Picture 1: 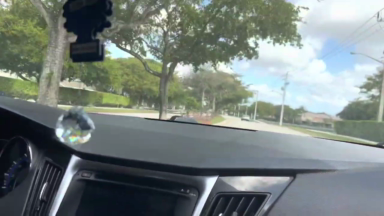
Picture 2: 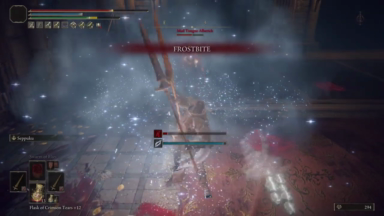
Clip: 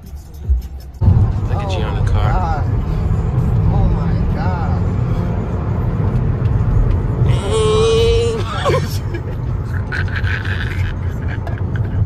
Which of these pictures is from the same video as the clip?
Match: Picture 1